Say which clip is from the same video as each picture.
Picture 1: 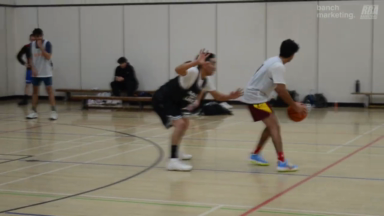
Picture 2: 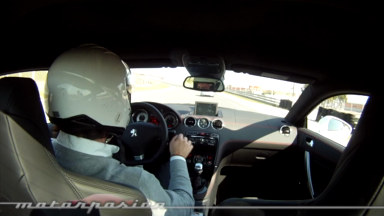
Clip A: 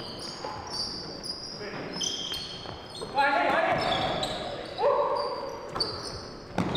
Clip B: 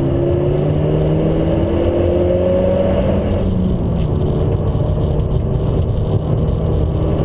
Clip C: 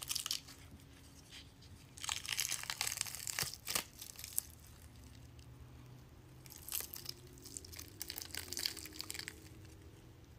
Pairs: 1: A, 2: B